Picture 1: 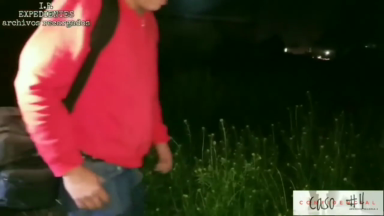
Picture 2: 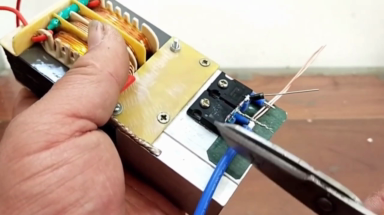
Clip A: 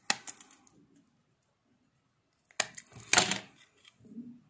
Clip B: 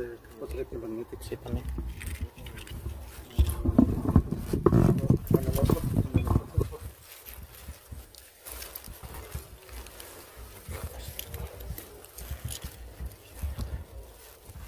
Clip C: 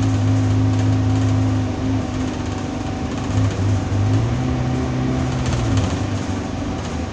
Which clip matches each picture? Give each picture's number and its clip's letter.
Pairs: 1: B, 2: A